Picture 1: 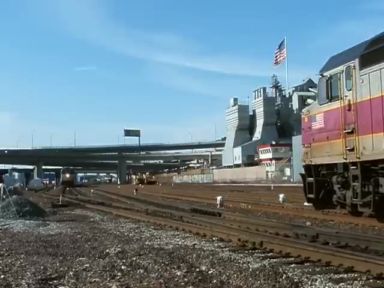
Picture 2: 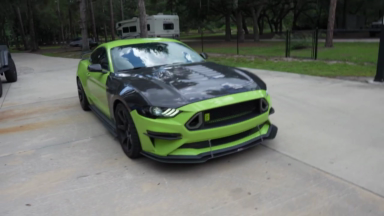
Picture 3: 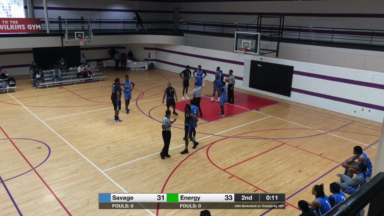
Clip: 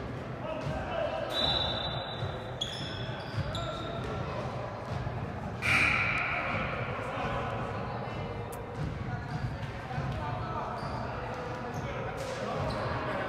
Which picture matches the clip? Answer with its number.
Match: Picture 3